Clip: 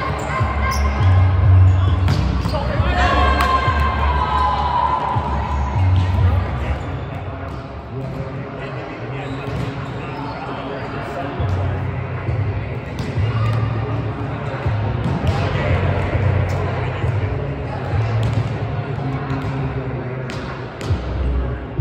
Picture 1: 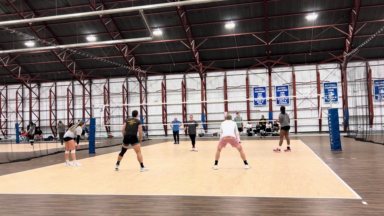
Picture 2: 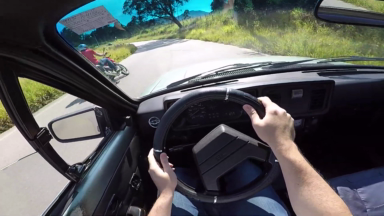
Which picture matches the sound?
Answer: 1